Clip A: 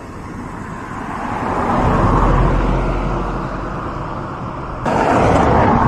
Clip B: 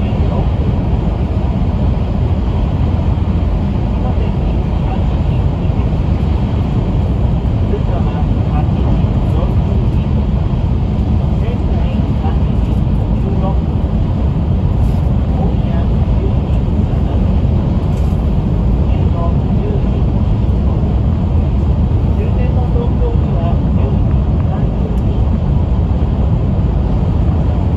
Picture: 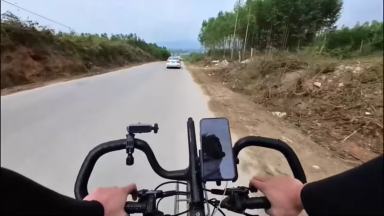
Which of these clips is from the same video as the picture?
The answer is A